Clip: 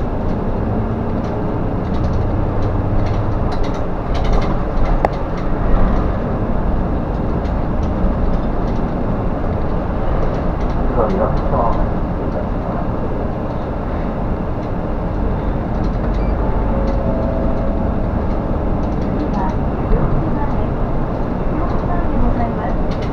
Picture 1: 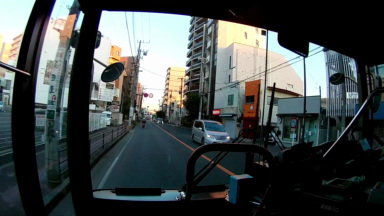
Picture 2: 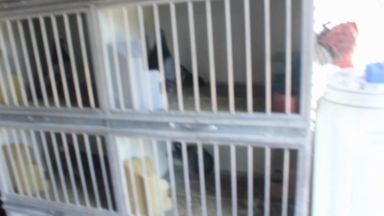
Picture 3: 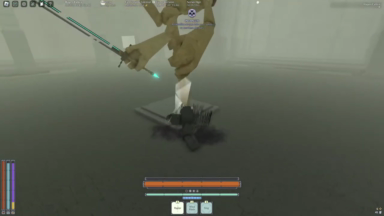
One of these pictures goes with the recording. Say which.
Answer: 1